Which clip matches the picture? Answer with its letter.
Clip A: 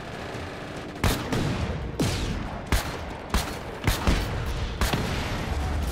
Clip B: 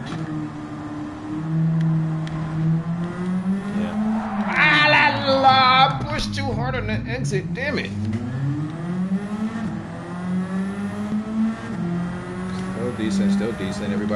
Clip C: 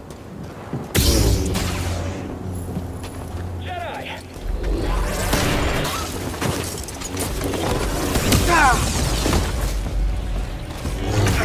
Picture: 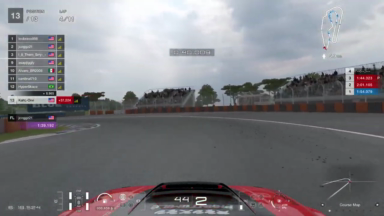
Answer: B